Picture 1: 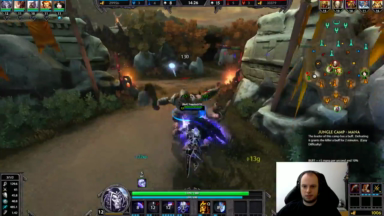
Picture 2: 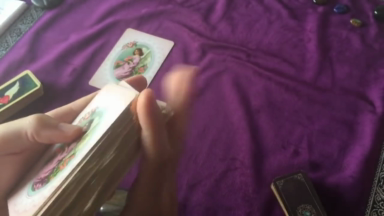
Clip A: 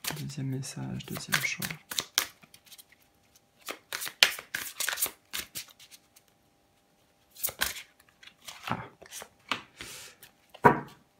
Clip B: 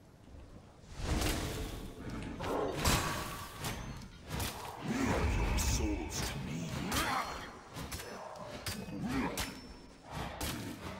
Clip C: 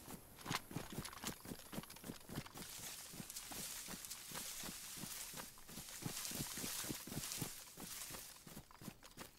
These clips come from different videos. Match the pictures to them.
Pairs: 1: B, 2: A